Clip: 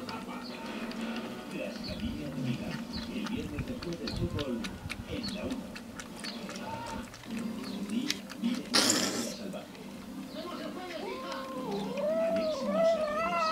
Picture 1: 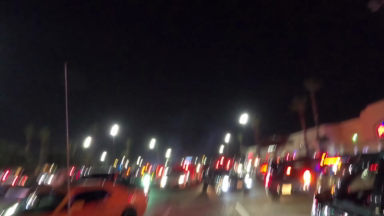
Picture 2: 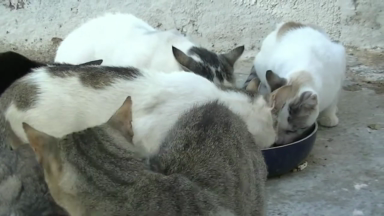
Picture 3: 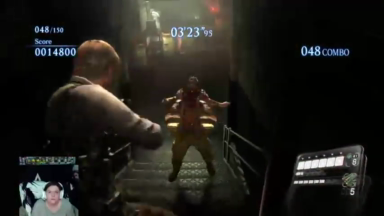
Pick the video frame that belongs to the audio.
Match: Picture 2